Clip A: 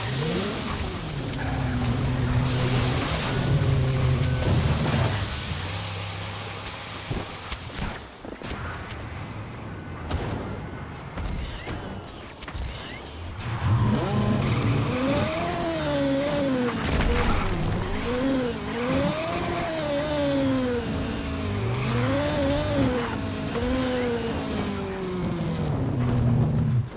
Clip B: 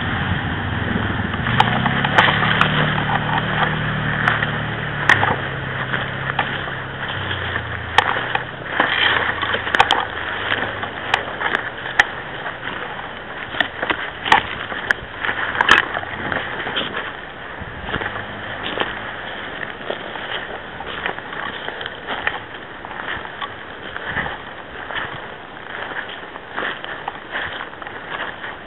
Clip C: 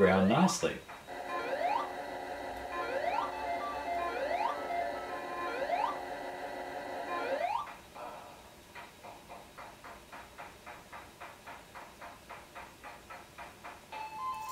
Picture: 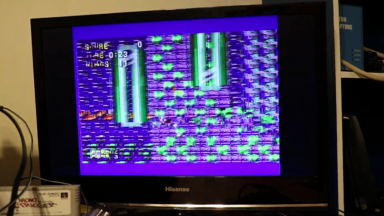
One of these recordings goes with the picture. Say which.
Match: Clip C